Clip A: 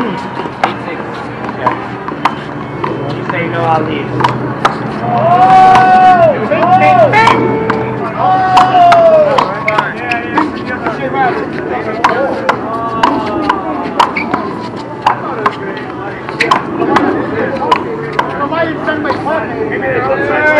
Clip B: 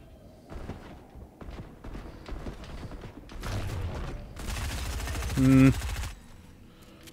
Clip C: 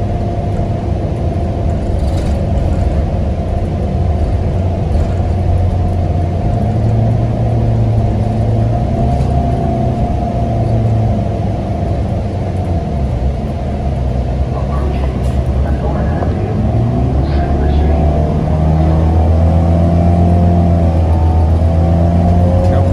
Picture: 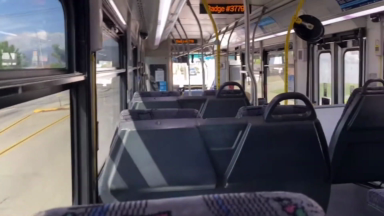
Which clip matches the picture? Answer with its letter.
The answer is C